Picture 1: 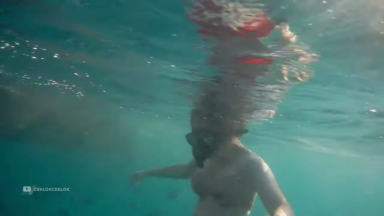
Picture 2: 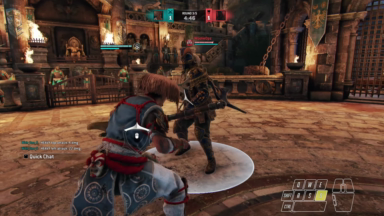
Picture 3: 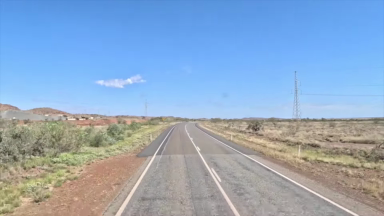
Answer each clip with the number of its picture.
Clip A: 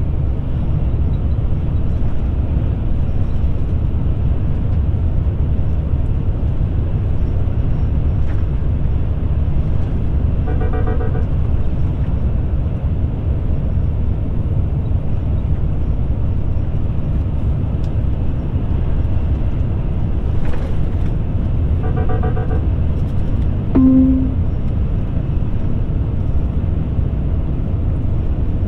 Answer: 3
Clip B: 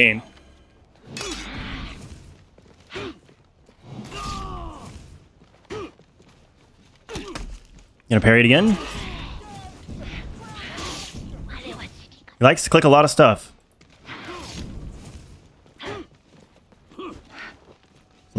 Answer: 2